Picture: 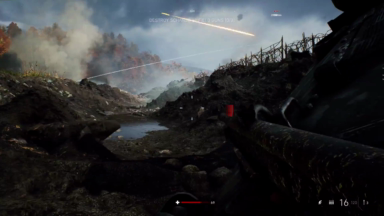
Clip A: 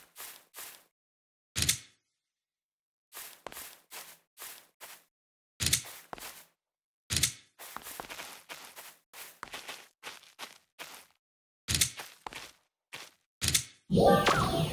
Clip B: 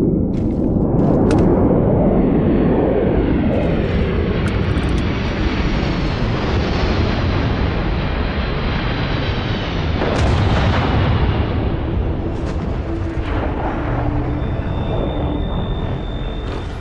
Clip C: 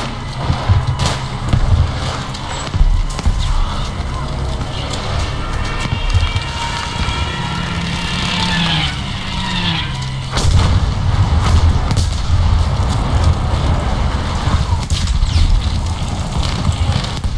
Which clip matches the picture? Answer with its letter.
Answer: C